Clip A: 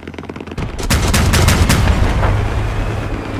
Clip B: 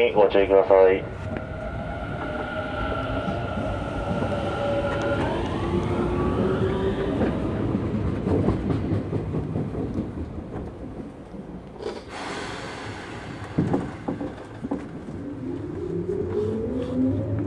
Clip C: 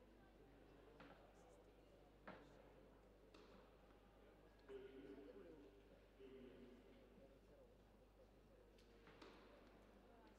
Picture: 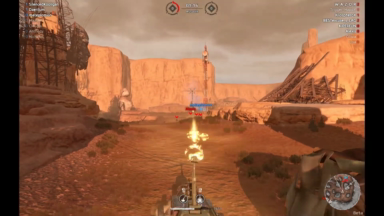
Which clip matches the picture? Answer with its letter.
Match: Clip A